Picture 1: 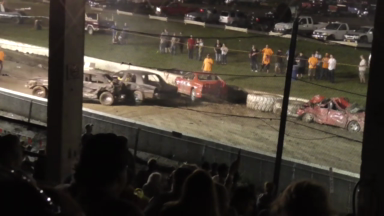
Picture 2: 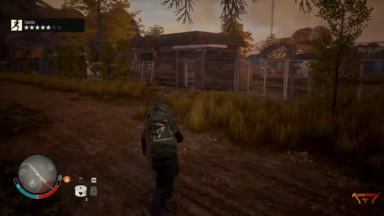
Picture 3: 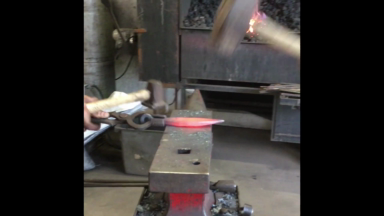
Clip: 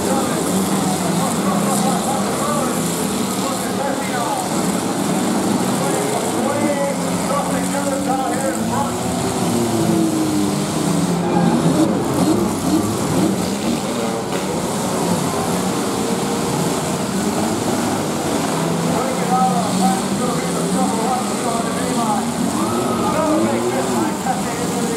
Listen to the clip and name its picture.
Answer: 1